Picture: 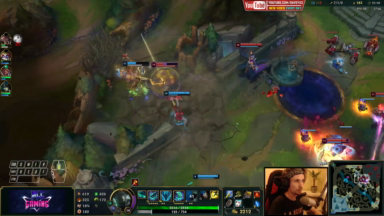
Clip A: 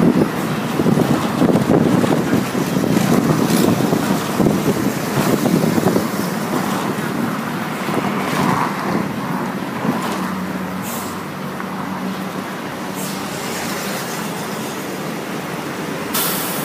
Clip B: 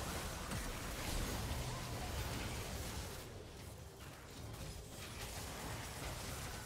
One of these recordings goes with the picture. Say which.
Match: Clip B